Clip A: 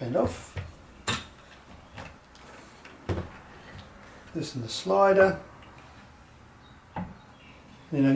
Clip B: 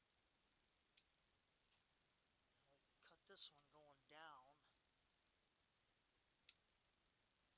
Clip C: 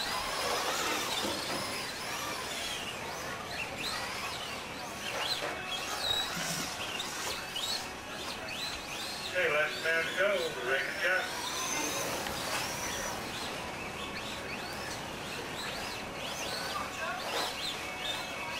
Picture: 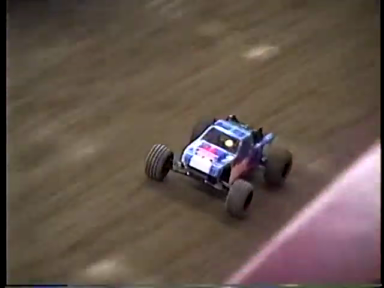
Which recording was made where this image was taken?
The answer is C